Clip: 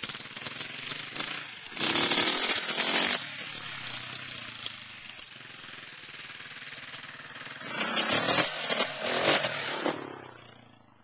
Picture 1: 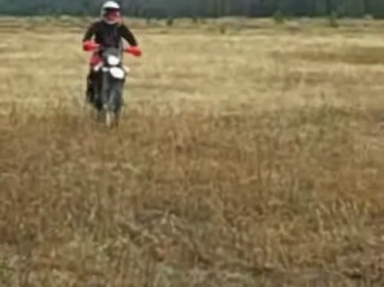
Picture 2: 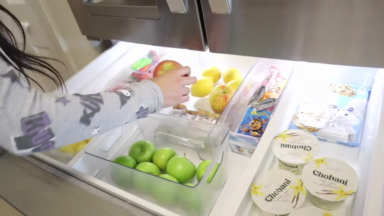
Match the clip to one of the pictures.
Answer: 1